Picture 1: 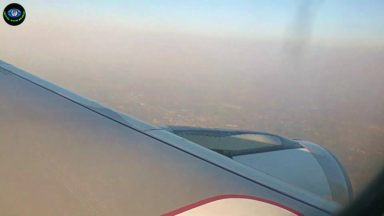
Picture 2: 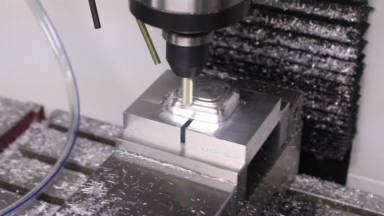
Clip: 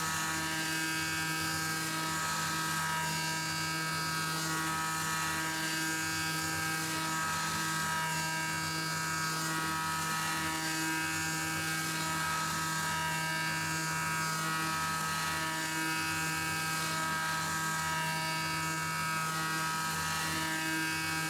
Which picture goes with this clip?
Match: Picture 2